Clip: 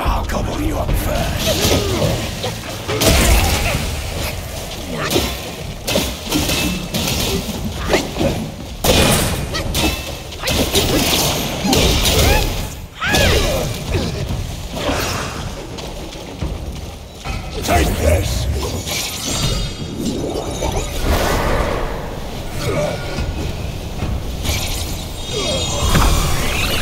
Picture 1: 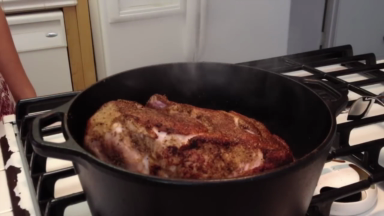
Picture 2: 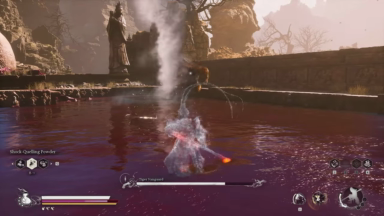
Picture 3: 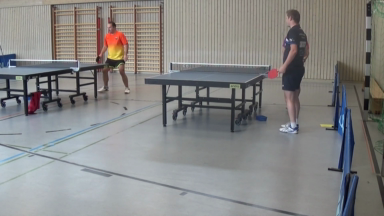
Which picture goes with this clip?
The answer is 2